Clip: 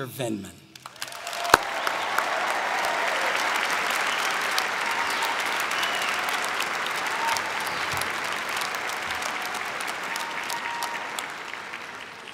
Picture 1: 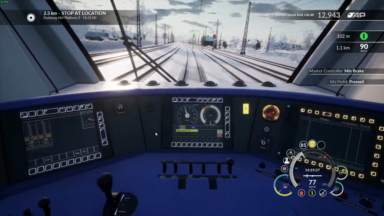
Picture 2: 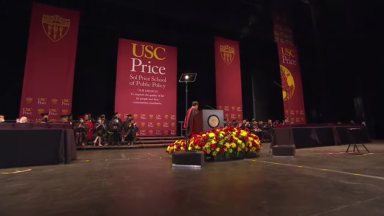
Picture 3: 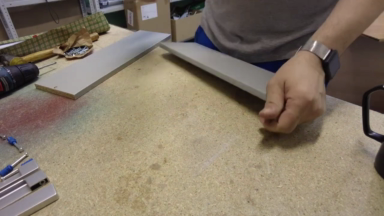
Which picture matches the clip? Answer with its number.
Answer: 2